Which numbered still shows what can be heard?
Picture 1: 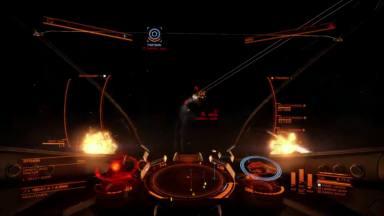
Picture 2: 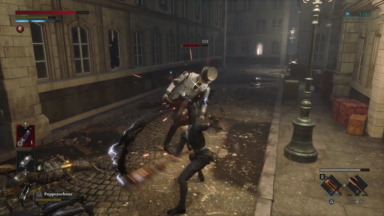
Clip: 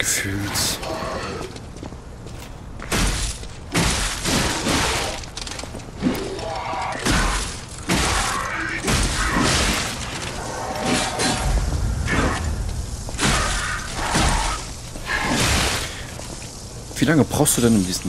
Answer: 2